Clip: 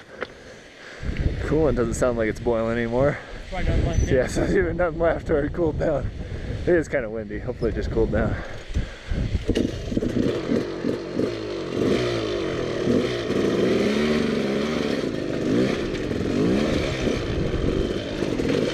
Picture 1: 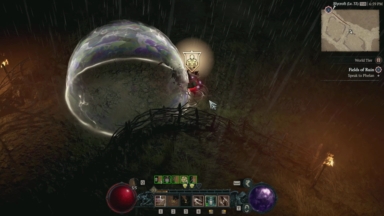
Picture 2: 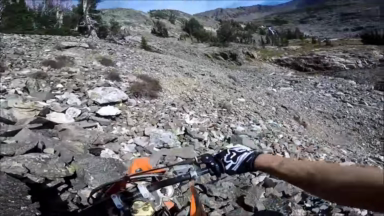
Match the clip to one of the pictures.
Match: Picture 2